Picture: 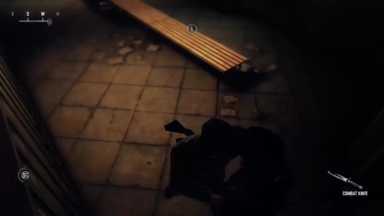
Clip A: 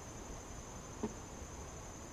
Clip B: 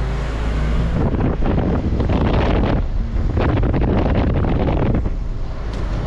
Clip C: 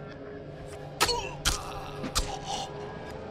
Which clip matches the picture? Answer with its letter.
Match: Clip C